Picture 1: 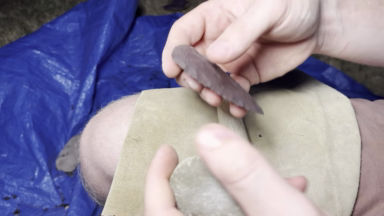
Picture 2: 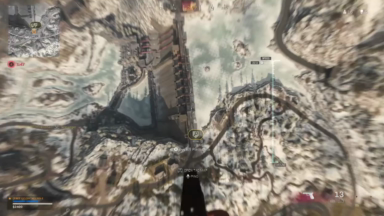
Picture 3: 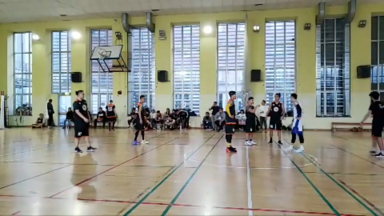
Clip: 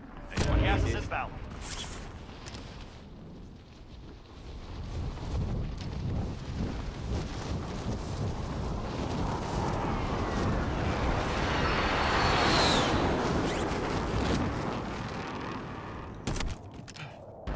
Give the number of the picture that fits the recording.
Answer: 2